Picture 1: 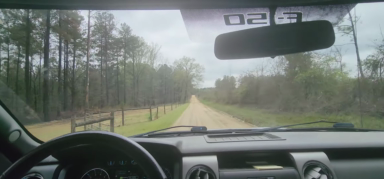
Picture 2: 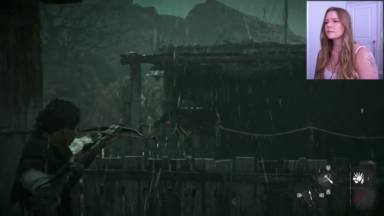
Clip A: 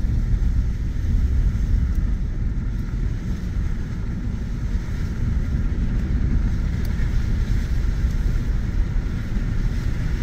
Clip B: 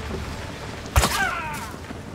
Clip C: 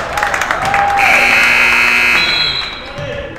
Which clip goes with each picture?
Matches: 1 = A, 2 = B